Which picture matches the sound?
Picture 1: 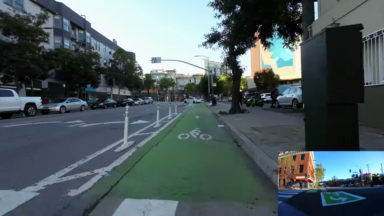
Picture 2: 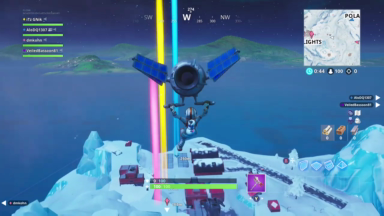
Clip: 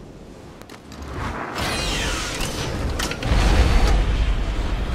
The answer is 2